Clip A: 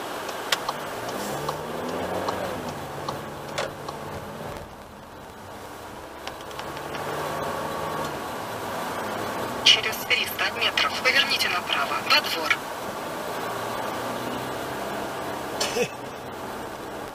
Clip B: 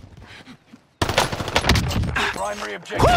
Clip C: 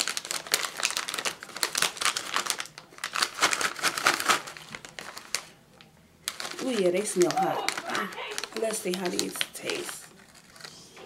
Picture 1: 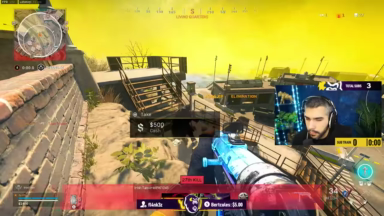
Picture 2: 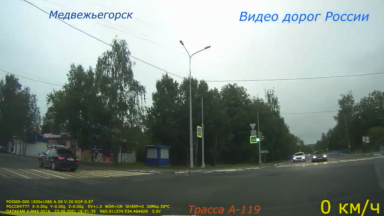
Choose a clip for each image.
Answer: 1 B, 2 A